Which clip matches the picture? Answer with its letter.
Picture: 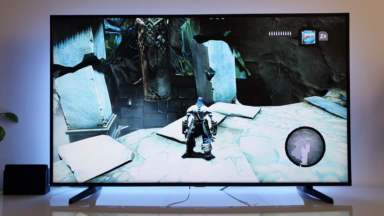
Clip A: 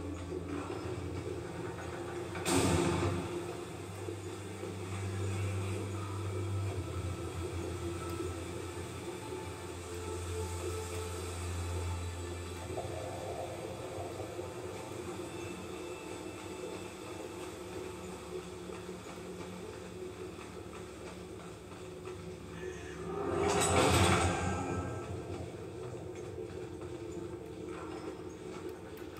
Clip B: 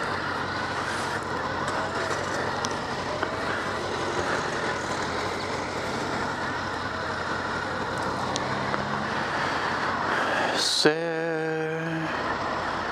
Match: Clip A